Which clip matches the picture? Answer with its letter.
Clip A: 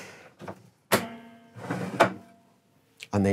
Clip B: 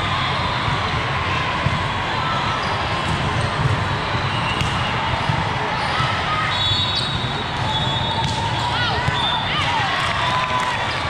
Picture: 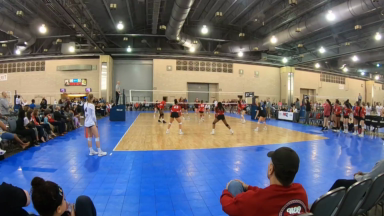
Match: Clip B